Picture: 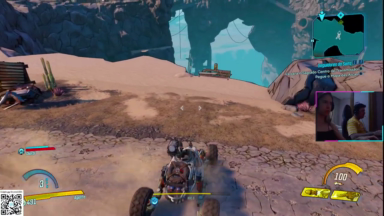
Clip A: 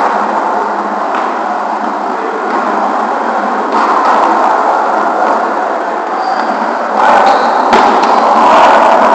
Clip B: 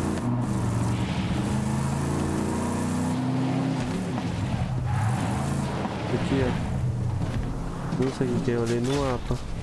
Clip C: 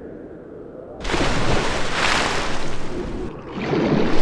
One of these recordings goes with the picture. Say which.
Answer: B